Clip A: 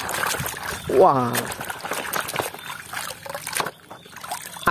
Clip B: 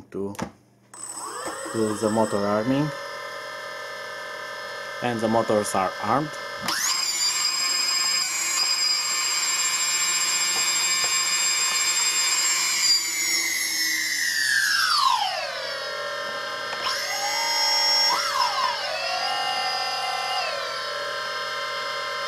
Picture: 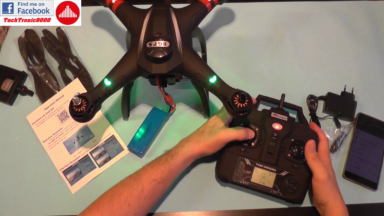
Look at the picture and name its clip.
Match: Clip B